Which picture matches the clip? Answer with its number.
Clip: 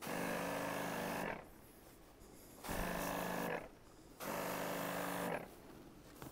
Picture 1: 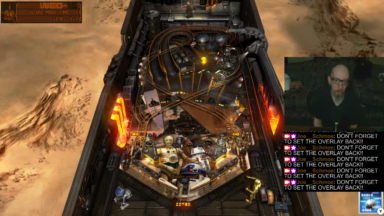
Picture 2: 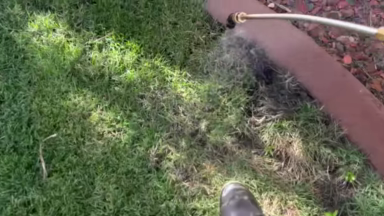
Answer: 2